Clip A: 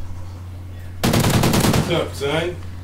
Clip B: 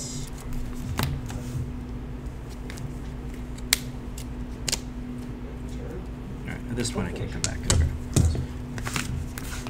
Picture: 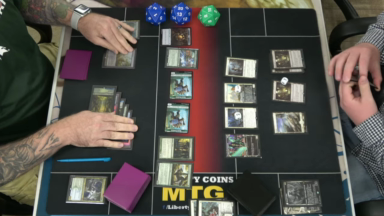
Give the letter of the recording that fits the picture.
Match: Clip B